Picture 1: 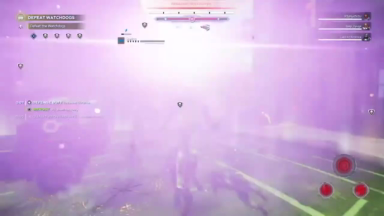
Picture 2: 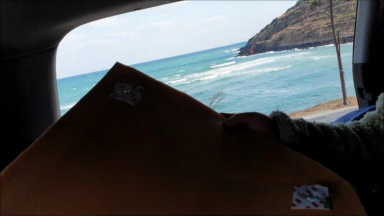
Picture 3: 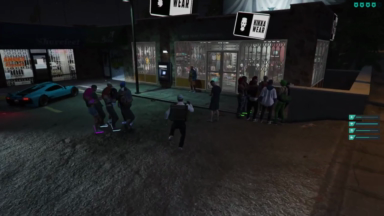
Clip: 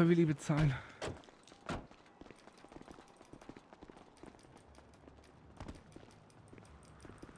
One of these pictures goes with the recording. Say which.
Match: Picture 3